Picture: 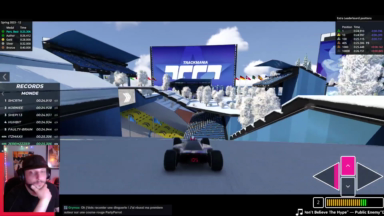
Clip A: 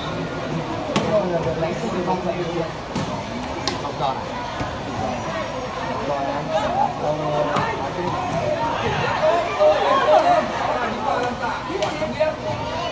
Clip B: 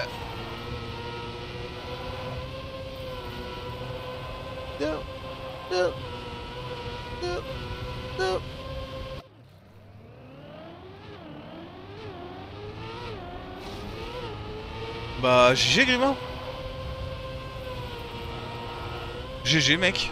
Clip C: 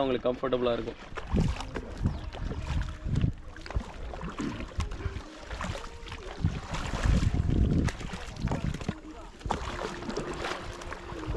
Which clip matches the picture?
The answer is B